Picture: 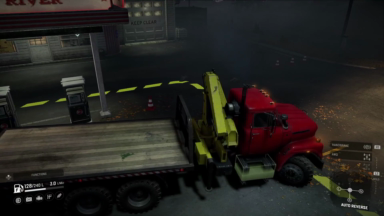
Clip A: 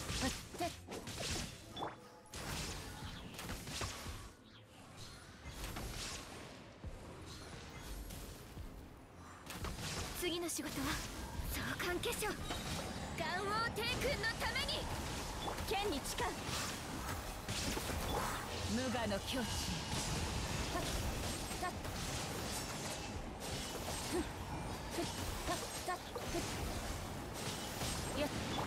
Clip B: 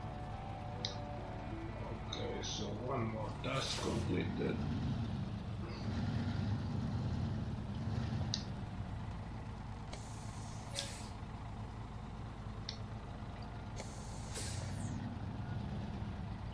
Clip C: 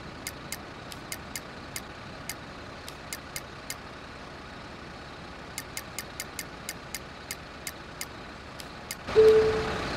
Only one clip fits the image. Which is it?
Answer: B